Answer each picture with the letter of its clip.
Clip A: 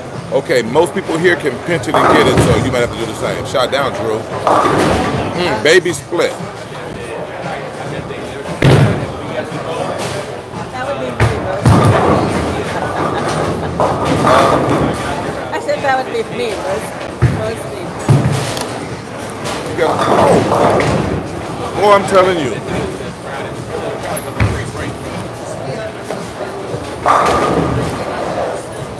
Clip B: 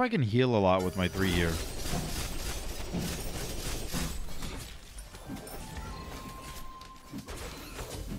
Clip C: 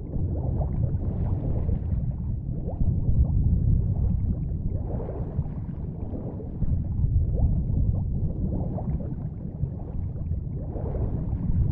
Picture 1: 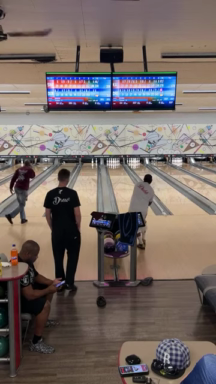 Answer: A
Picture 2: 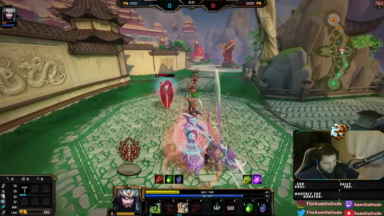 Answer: B